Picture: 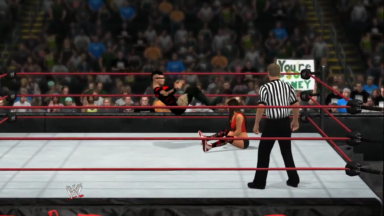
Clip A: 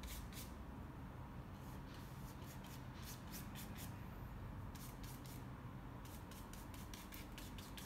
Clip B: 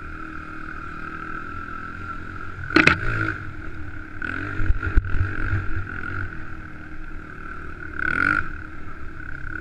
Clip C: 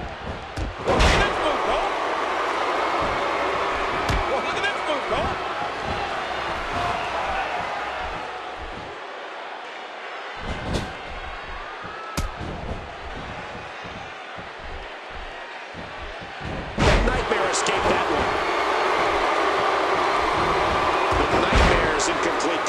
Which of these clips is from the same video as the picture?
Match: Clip C